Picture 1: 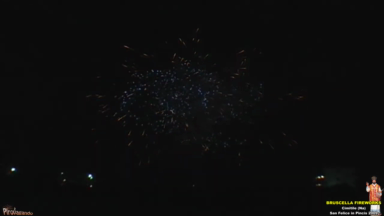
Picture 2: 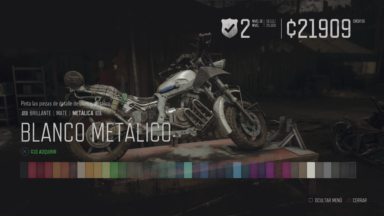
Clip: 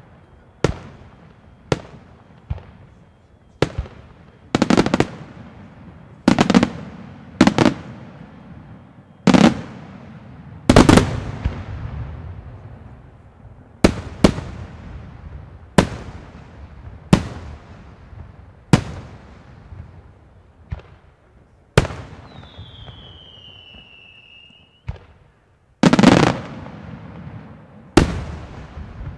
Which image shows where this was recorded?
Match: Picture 1